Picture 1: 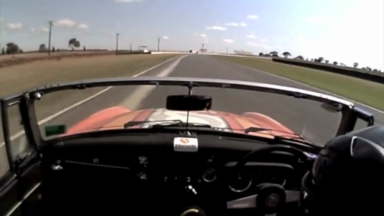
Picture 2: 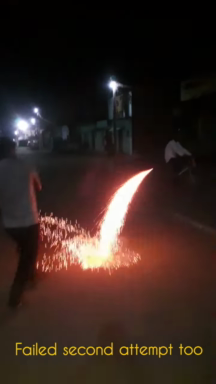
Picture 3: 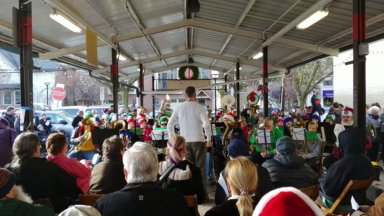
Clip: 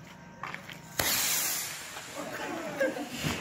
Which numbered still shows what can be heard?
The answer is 2